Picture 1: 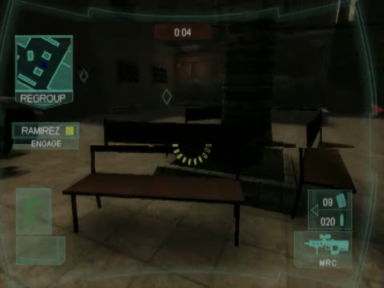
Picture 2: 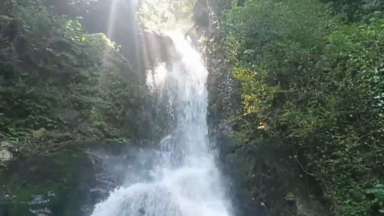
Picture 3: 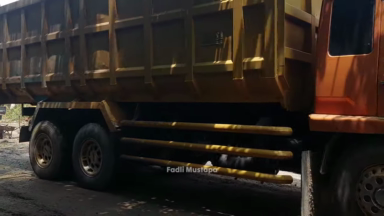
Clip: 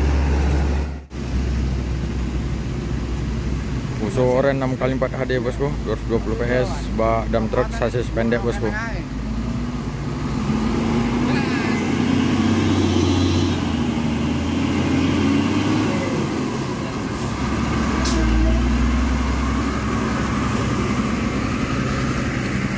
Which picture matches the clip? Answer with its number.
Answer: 3